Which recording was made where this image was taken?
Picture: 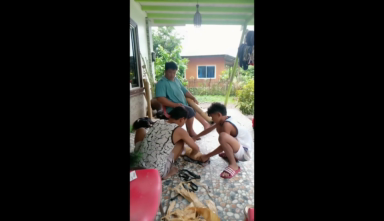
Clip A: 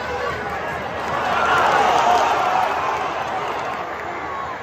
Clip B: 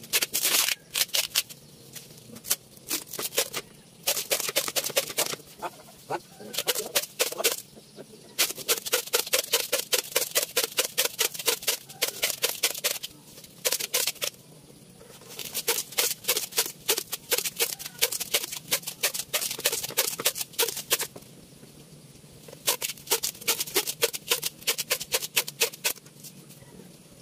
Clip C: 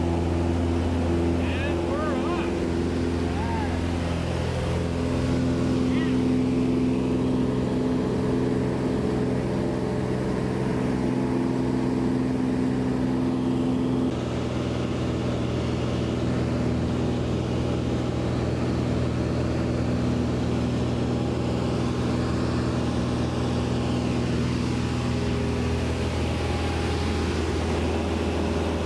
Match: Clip B